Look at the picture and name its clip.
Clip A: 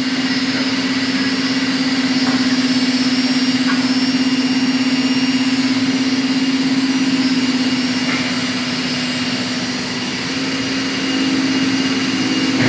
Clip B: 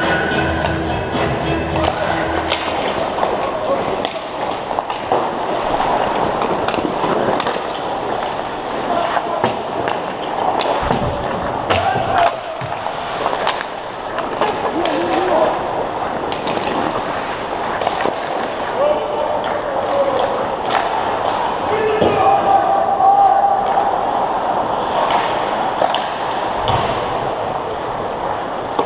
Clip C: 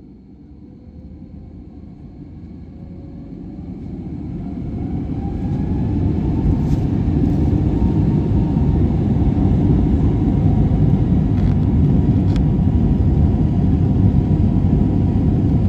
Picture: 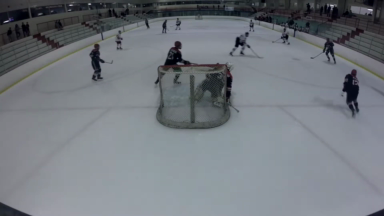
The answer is B